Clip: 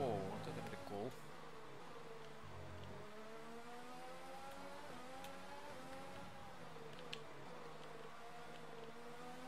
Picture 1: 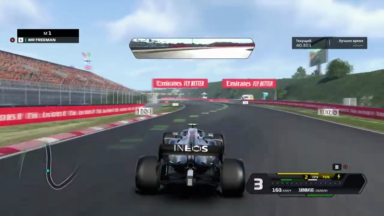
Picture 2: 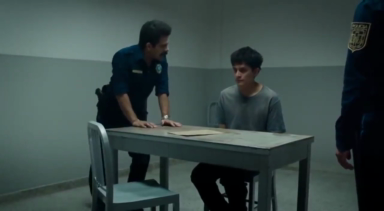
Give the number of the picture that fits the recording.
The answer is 1